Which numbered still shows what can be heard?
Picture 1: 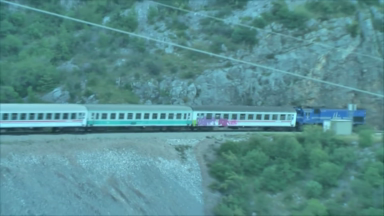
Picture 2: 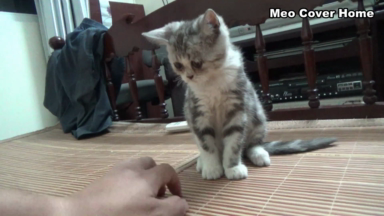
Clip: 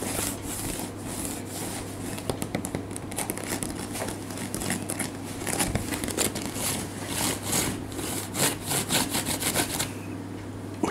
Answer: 2